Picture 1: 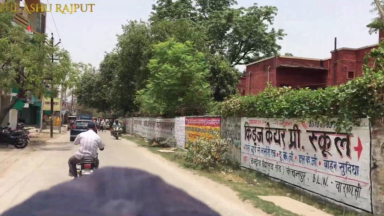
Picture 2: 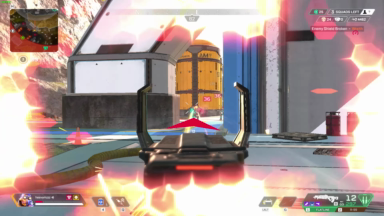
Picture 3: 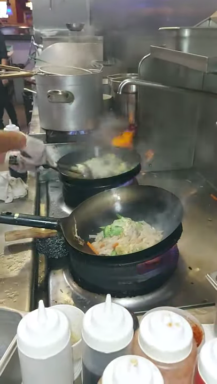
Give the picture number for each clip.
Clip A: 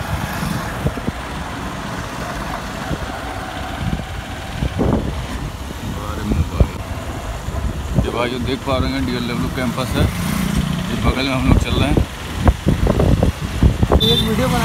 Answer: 1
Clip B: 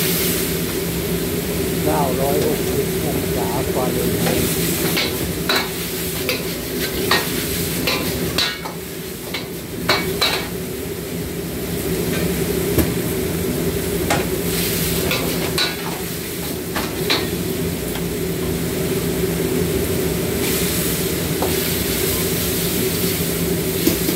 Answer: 3